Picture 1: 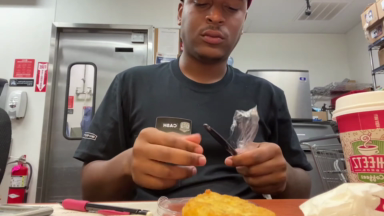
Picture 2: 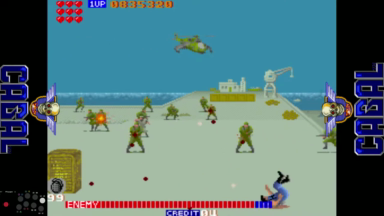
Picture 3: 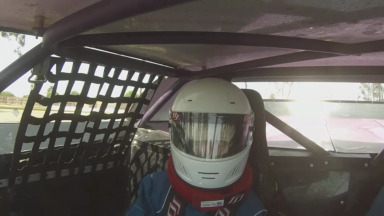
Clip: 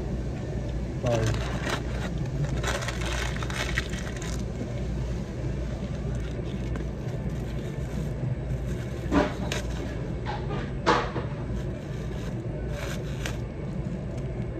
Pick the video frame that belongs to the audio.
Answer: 1